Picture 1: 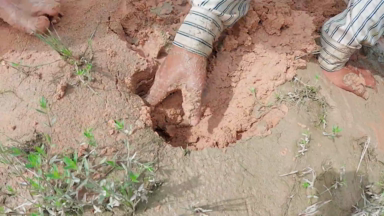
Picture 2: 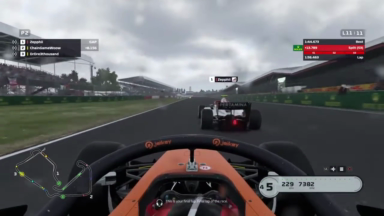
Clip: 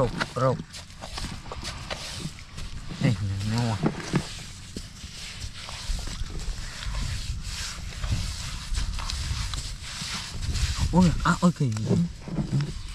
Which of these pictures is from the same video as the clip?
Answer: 1